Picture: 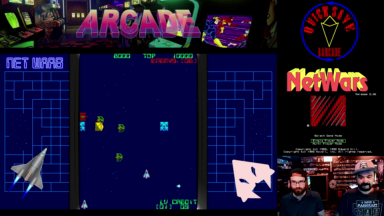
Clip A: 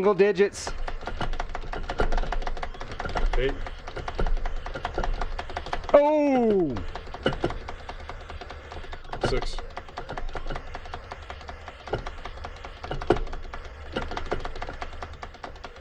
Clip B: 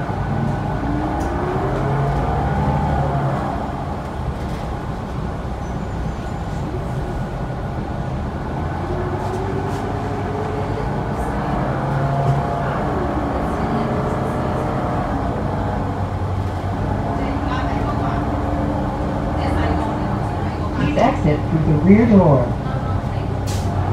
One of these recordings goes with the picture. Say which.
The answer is A